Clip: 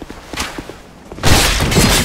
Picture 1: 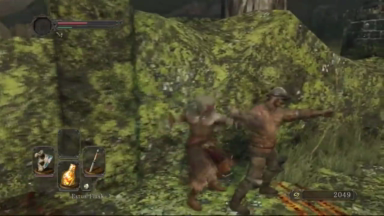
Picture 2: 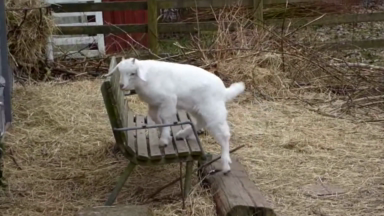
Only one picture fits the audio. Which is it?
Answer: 1